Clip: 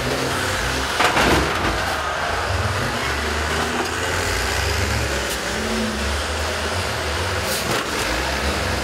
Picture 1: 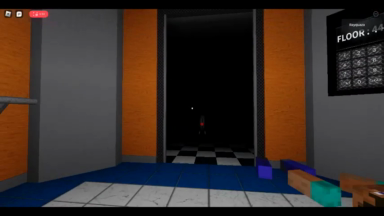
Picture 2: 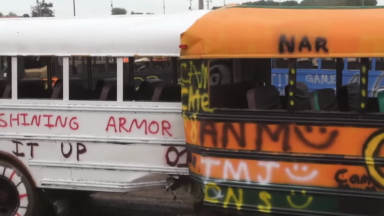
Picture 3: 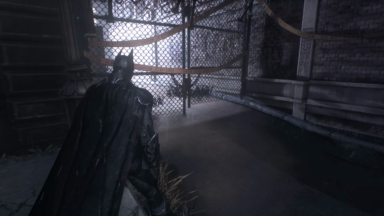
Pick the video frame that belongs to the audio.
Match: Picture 2